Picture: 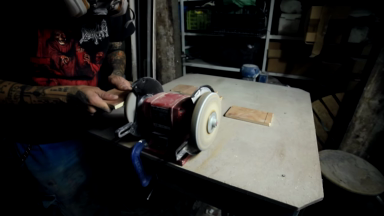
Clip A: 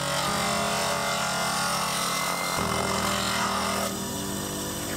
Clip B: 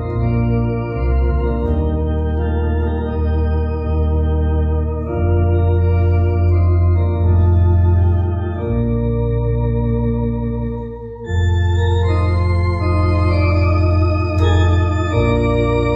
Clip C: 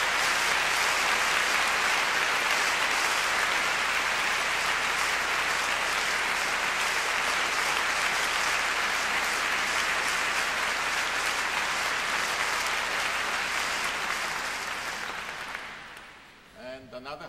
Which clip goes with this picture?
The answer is A